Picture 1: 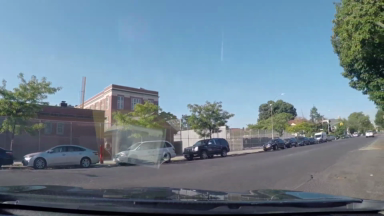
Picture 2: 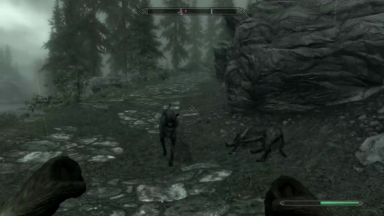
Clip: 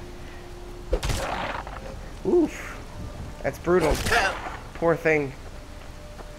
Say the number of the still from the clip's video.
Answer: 2